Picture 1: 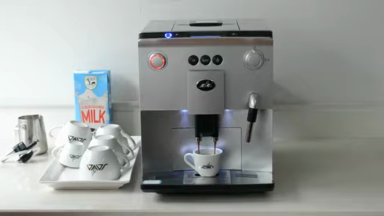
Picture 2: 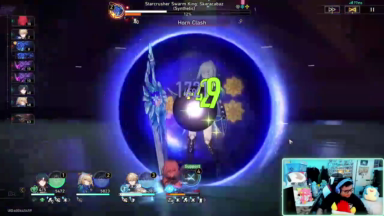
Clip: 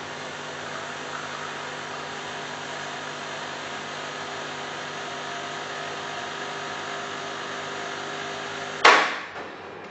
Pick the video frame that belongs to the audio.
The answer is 1